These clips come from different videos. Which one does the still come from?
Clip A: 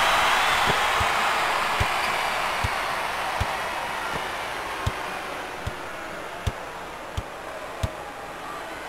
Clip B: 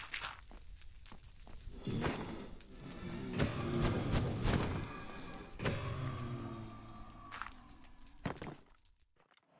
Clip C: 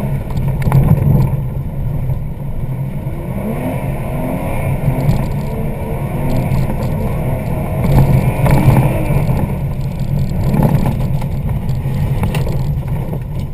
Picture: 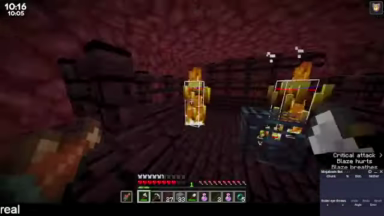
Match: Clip B